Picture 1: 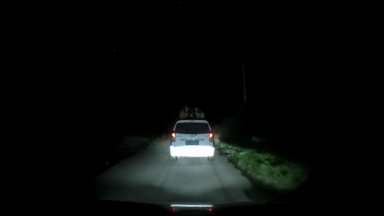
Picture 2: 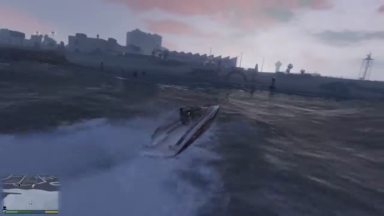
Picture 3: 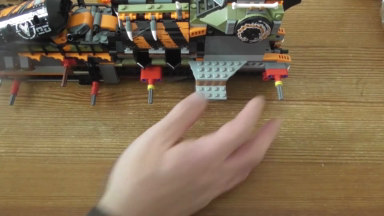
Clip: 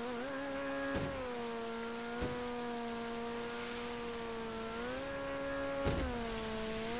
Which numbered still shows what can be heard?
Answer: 2